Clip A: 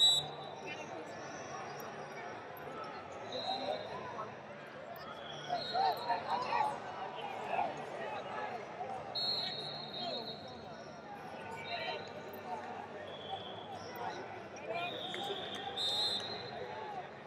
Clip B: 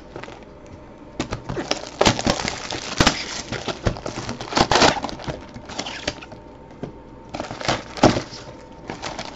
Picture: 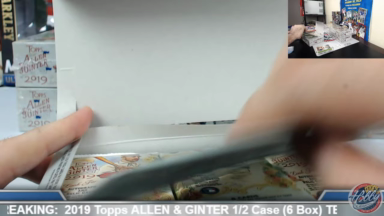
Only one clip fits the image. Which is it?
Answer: B